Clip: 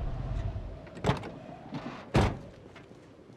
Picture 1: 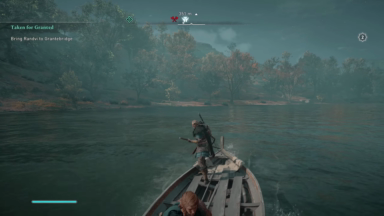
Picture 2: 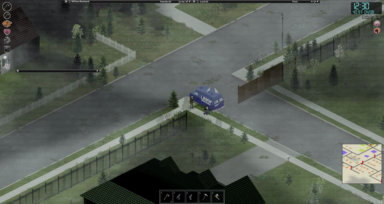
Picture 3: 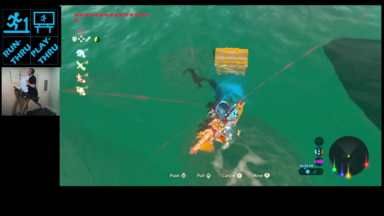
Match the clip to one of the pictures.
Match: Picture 2